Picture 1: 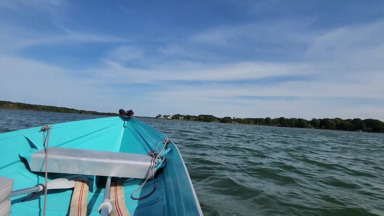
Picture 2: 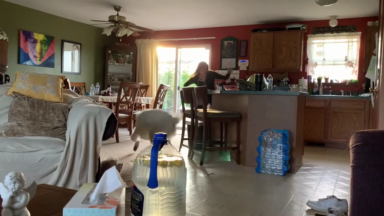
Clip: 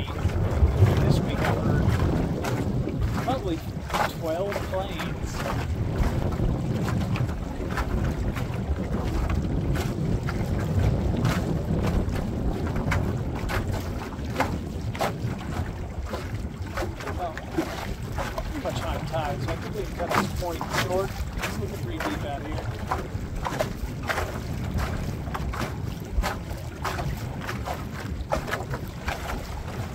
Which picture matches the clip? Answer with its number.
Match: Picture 1